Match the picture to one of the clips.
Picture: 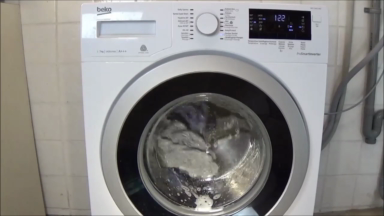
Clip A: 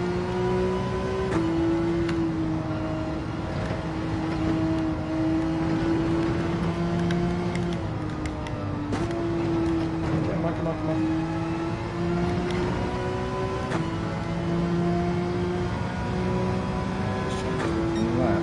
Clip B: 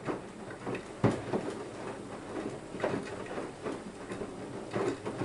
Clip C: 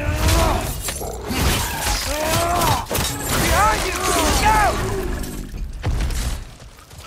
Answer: B